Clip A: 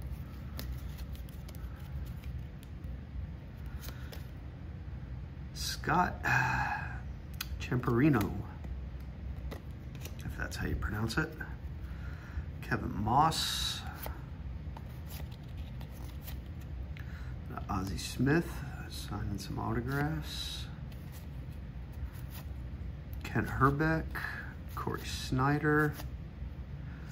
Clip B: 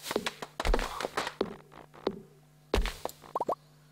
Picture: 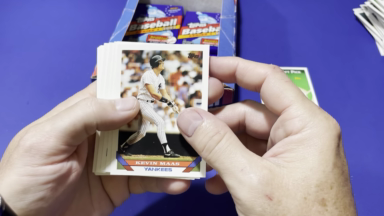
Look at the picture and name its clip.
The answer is A